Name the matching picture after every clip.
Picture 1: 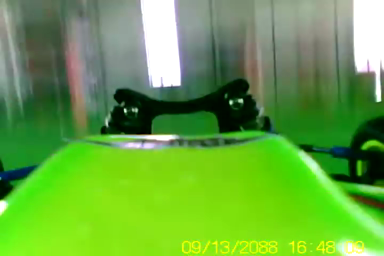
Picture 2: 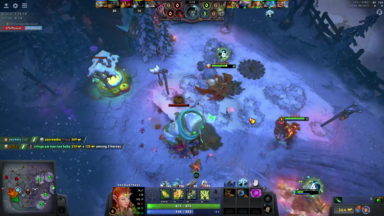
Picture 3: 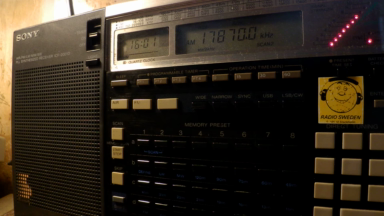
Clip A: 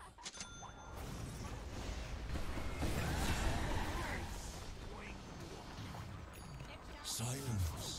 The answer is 2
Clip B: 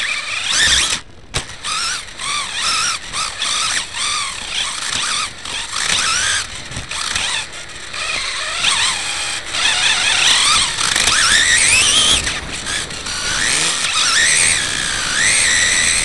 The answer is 1